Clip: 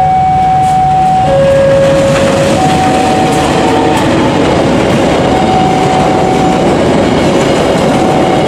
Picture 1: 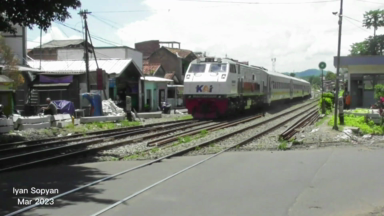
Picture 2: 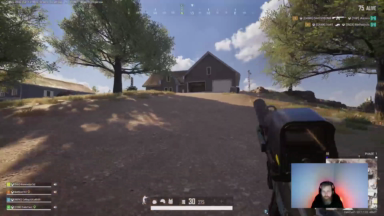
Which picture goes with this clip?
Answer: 1